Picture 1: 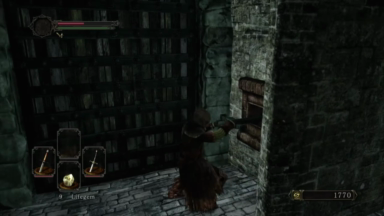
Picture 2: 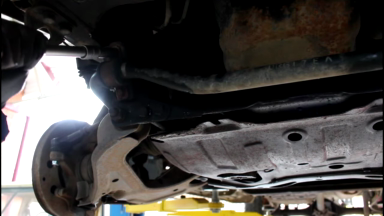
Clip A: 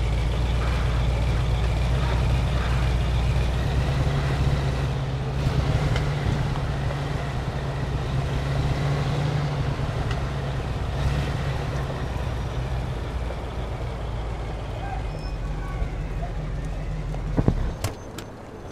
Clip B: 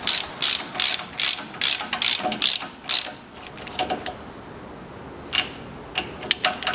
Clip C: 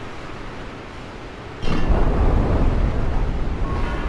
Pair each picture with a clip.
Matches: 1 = C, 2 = B